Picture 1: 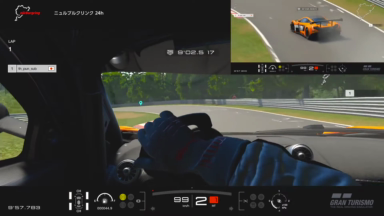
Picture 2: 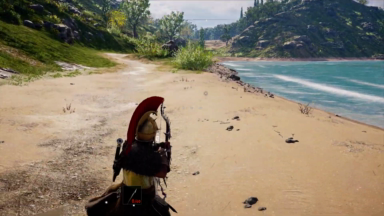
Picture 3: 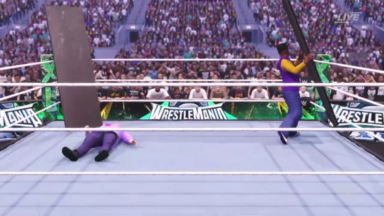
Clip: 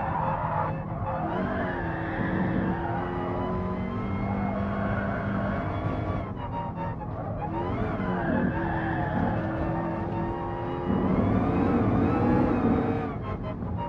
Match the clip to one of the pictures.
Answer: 1